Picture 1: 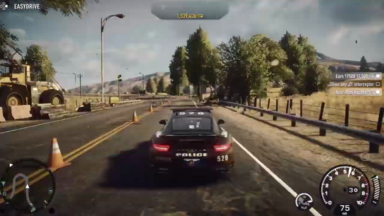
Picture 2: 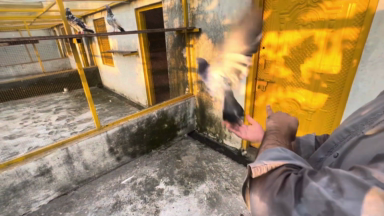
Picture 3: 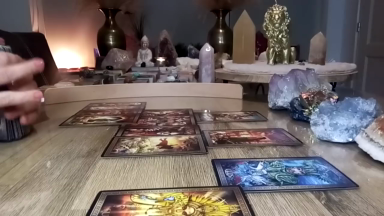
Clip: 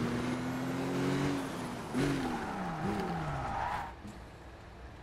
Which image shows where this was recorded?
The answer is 1